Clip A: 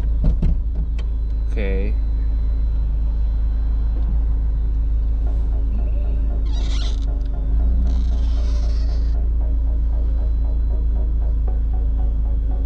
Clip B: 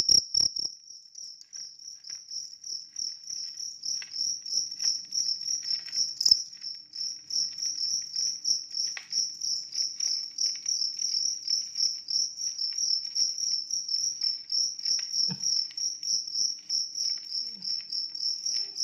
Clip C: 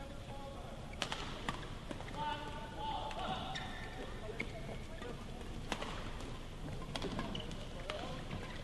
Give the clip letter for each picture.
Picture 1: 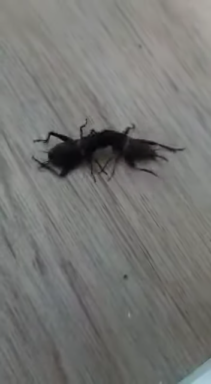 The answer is B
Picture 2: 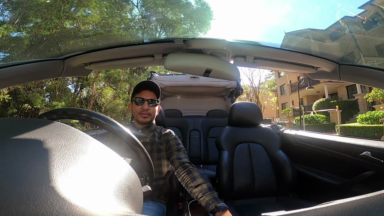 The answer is A